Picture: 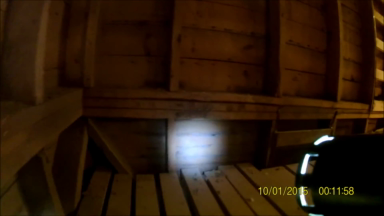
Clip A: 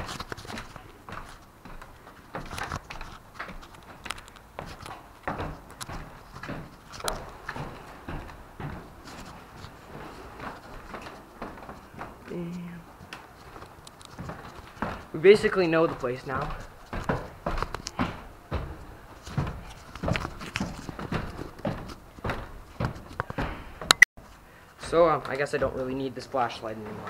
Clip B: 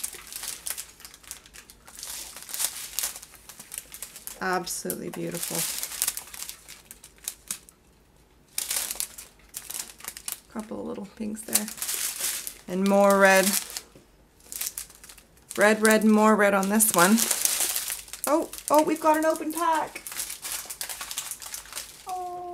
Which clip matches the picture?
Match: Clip A